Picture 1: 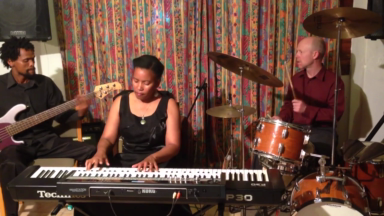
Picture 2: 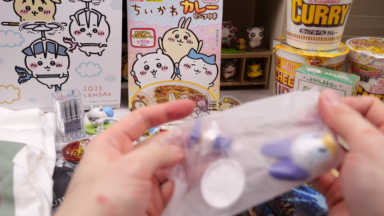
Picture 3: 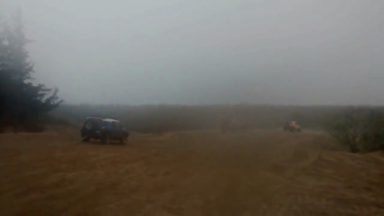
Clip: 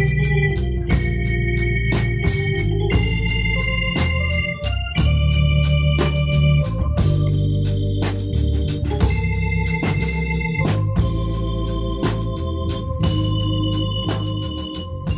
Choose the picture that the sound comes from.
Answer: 1